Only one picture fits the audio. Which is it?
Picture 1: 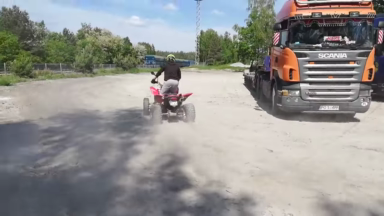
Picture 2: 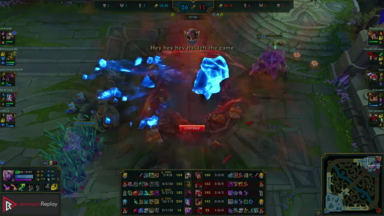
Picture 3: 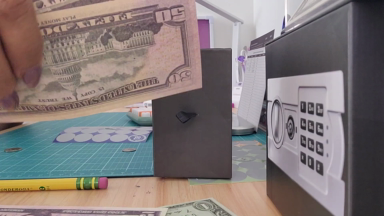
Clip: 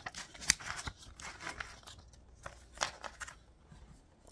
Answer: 3